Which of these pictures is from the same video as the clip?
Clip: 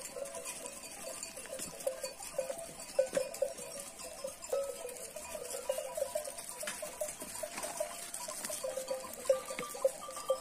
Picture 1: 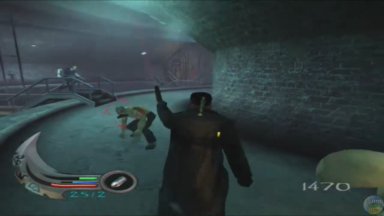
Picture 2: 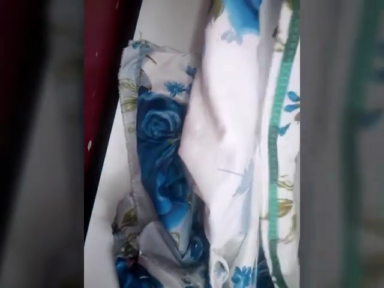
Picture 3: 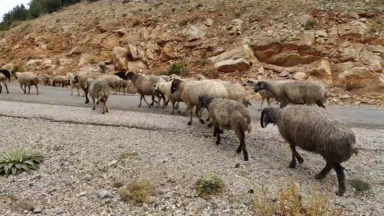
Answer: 3